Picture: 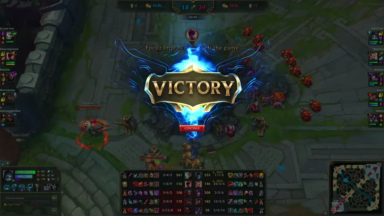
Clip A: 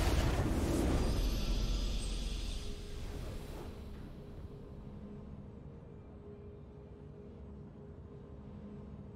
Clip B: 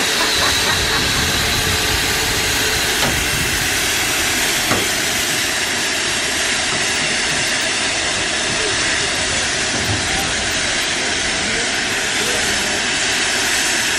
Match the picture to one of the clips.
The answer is A